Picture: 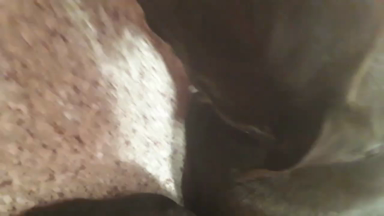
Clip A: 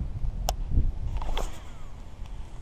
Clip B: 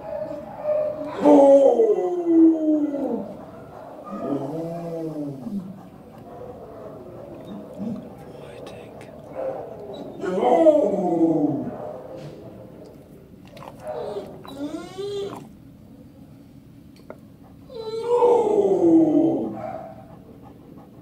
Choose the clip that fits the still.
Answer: B